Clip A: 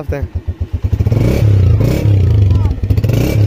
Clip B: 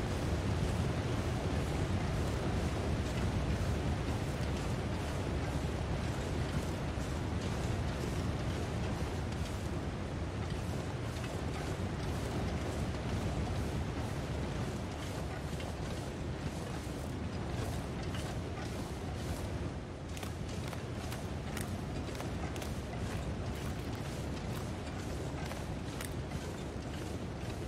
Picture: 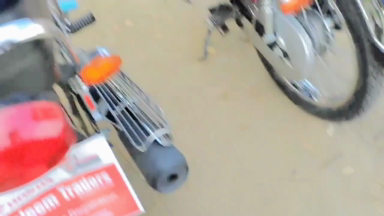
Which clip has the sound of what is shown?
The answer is A